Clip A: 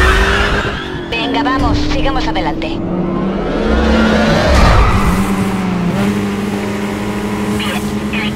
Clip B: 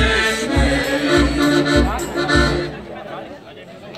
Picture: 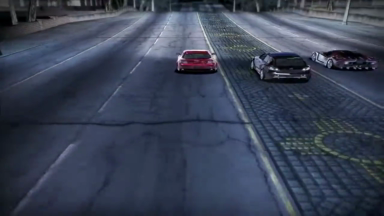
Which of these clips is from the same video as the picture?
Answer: A